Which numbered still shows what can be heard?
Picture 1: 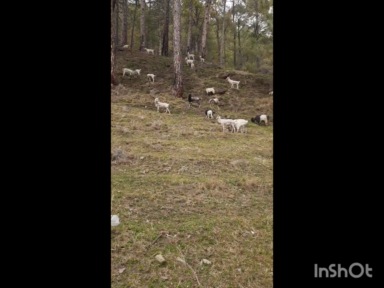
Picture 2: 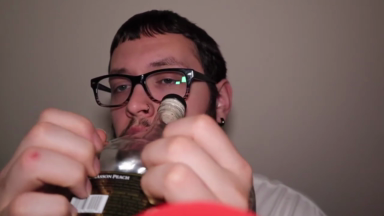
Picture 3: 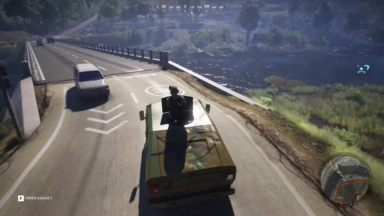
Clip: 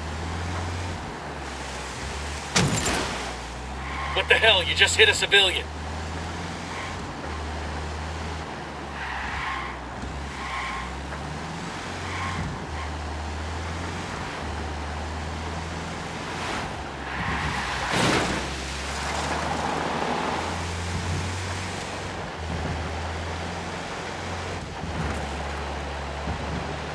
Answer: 3